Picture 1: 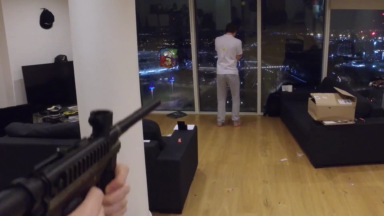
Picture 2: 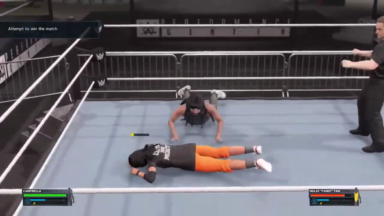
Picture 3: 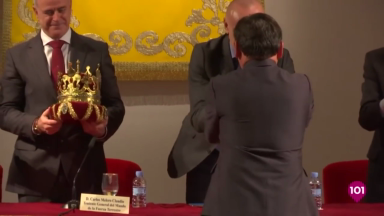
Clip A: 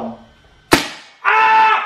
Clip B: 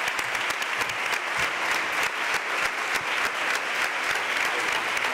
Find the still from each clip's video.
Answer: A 1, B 3